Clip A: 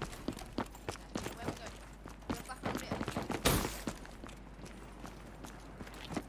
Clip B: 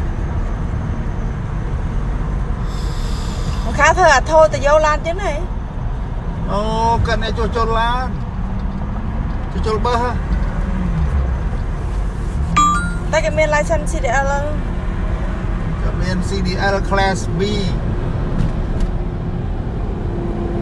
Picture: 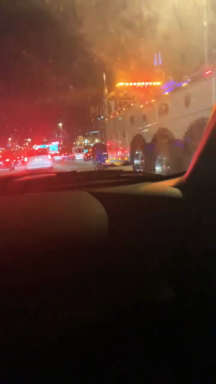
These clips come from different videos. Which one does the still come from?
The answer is B